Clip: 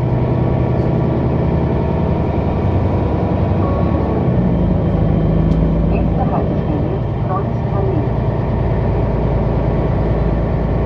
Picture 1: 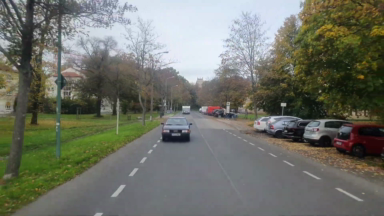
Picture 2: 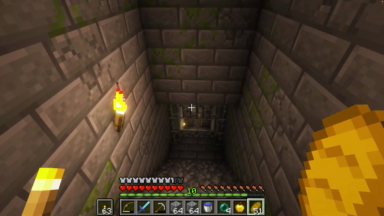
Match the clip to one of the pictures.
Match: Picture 1